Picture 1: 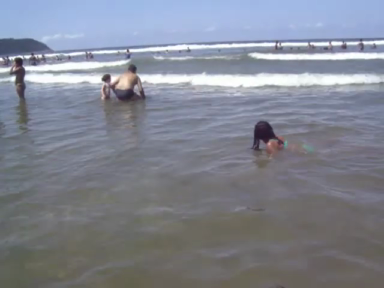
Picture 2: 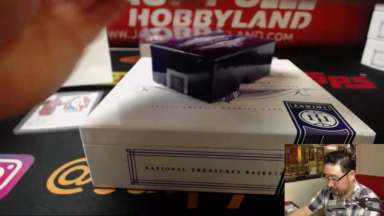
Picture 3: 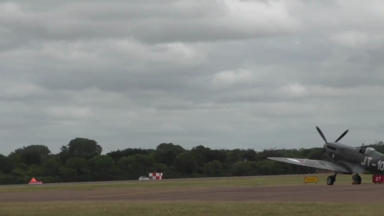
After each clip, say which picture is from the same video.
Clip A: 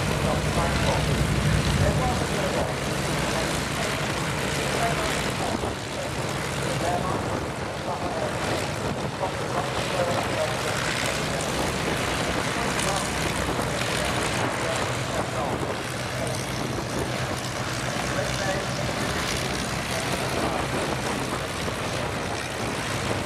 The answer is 3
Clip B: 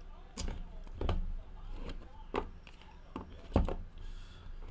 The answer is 2